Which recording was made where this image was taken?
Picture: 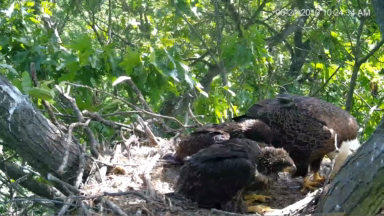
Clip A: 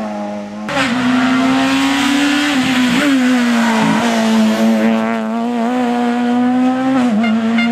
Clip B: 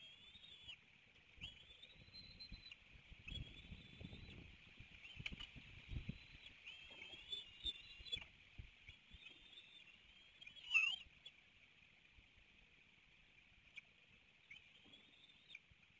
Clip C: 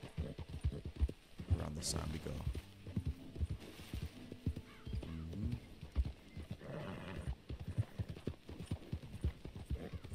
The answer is B